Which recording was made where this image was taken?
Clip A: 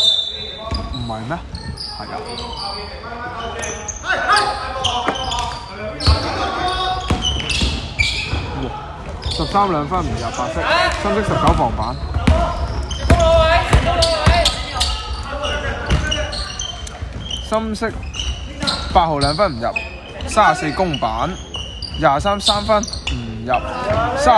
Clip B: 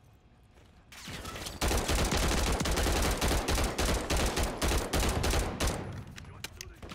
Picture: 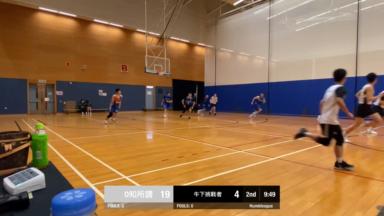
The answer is A